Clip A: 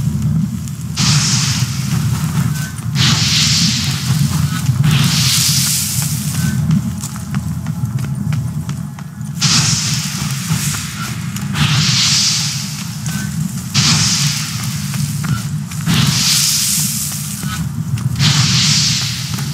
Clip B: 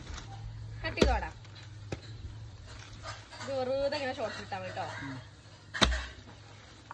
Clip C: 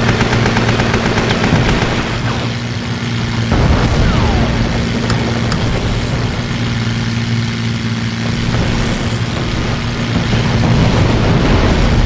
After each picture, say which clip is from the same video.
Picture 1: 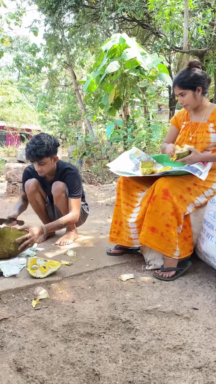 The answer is B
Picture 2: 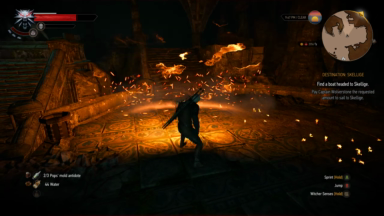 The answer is A